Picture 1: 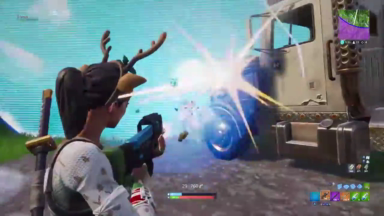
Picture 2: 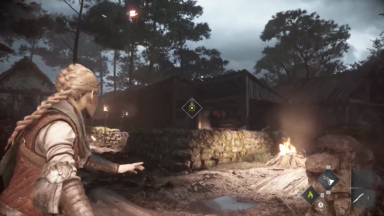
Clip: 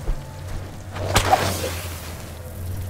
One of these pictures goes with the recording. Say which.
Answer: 2